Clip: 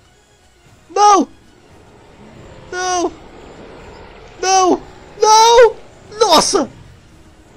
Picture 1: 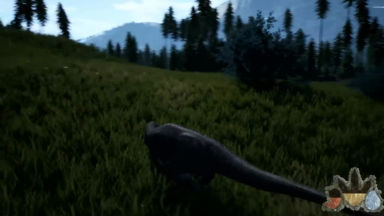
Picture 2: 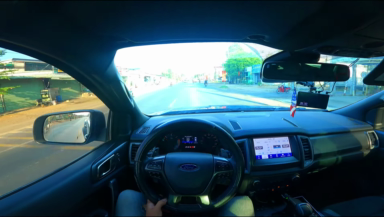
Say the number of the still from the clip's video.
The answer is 1